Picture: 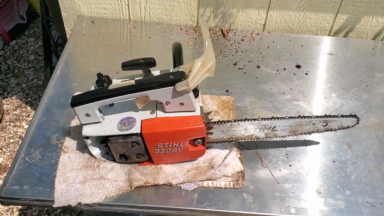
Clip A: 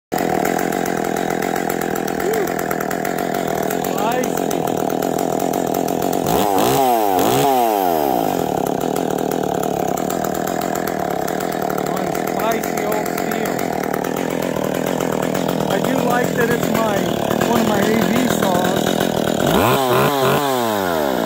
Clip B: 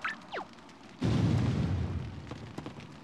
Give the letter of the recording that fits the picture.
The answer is A